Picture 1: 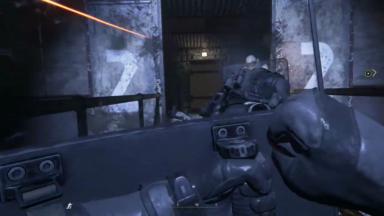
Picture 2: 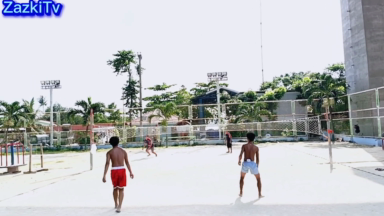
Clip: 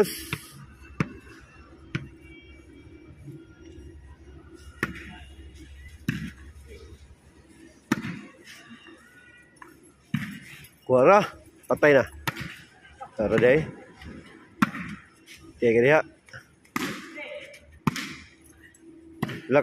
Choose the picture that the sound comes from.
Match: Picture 2